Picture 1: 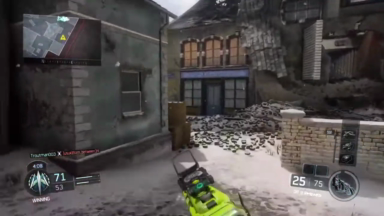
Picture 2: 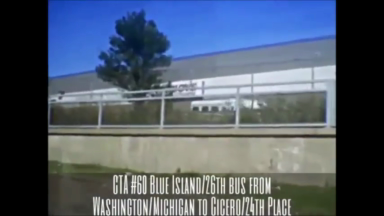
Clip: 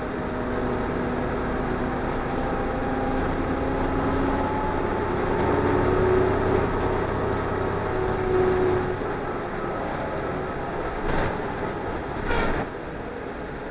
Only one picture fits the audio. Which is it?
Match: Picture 2